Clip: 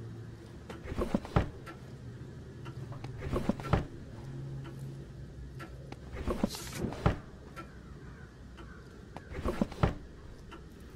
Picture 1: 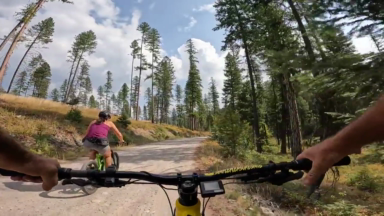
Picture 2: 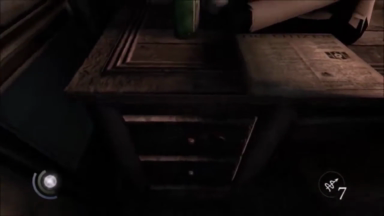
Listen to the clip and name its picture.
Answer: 2